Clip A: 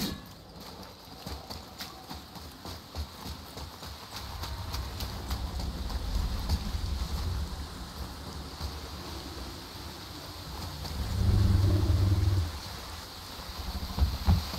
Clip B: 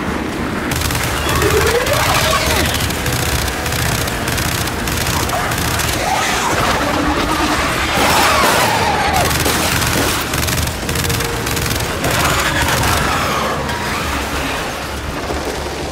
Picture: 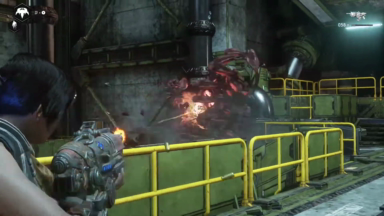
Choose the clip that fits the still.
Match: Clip B